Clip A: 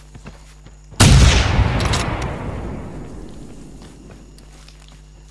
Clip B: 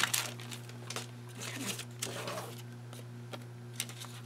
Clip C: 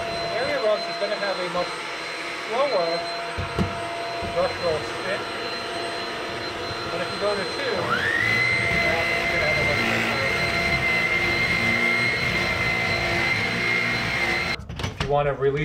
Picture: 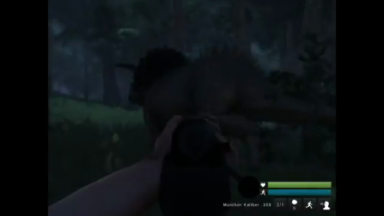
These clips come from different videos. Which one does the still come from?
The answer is A